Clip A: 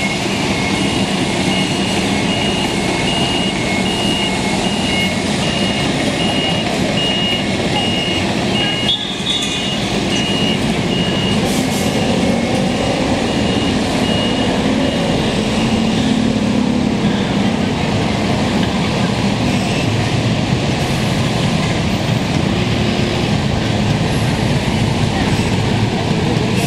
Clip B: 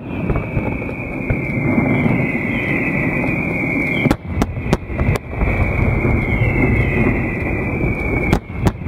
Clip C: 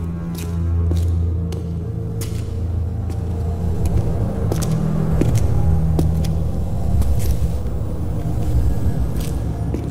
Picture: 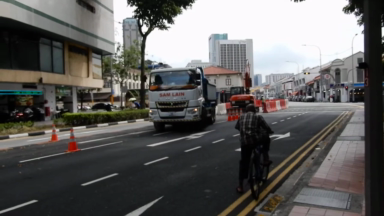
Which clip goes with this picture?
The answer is A